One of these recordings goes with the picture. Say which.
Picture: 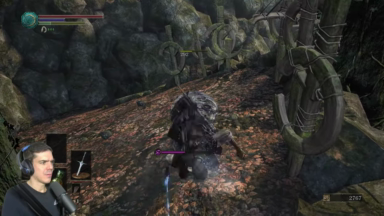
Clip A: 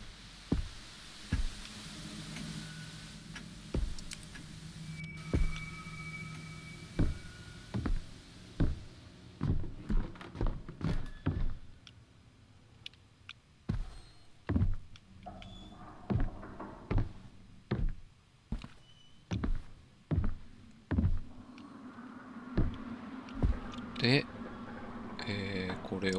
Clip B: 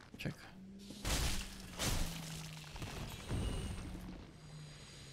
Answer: B